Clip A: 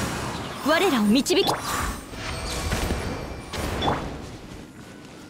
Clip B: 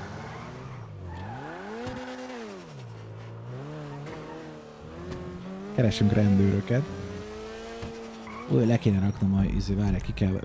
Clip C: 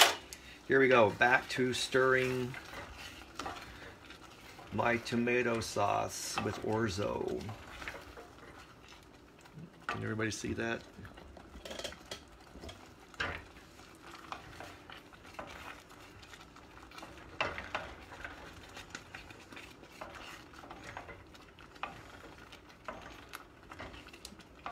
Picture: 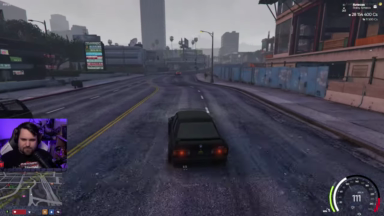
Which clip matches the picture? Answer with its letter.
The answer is B